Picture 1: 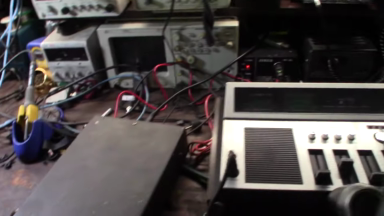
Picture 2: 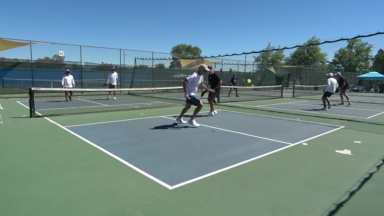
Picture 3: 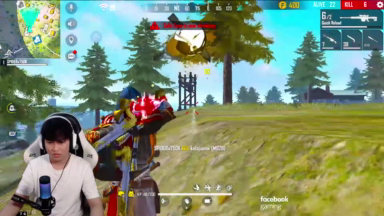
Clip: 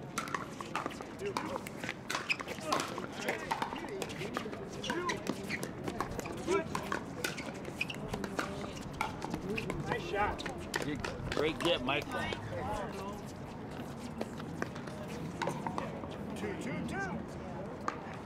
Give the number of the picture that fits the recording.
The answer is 2